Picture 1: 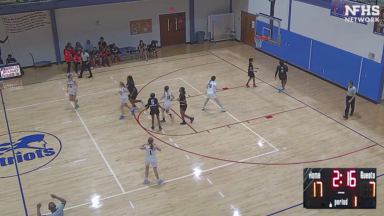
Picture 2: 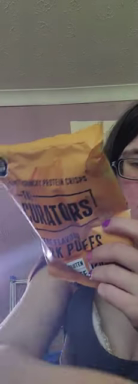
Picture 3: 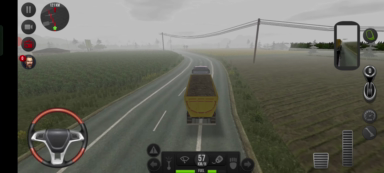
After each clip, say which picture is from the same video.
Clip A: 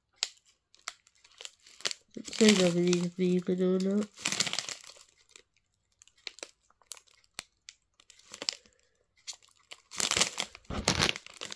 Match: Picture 2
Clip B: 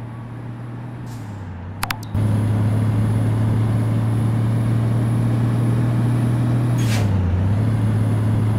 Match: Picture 3